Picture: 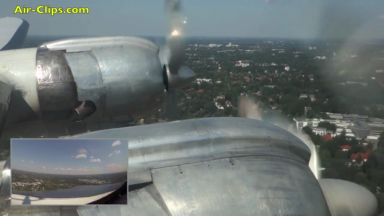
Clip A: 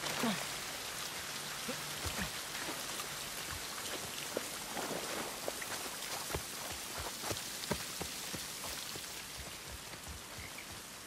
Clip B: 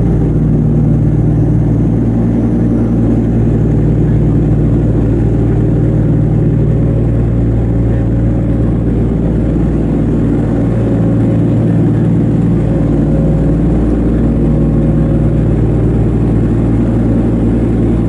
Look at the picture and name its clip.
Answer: B